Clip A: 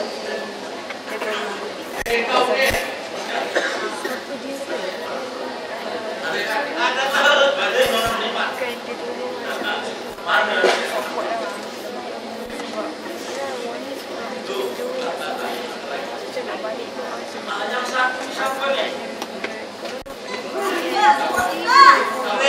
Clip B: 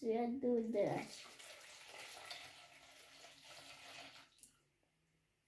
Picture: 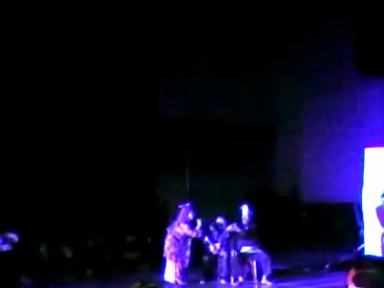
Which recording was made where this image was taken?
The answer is A